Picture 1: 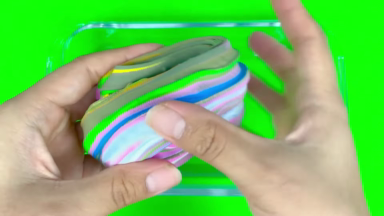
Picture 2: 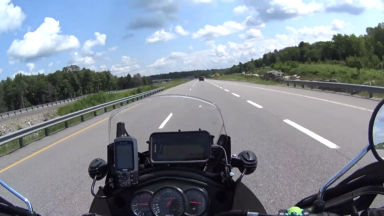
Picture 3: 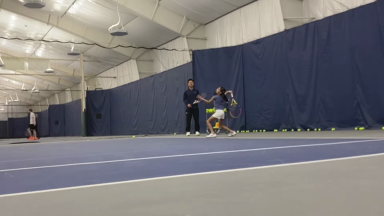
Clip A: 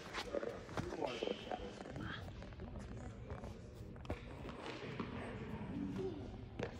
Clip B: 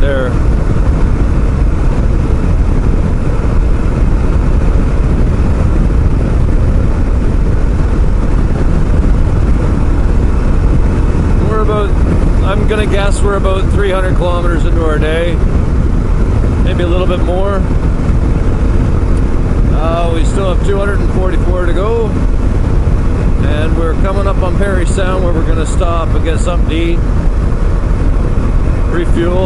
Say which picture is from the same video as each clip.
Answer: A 3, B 2